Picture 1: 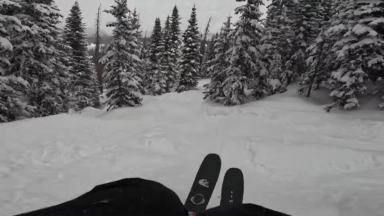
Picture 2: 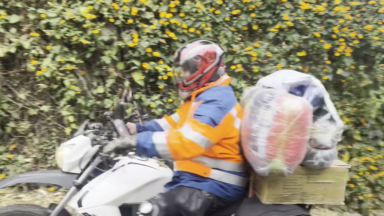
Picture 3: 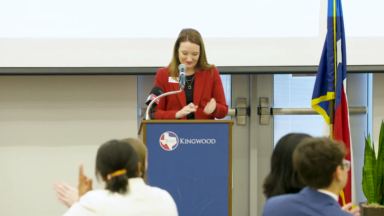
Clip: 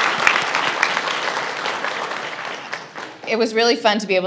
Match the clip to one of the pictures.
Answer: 3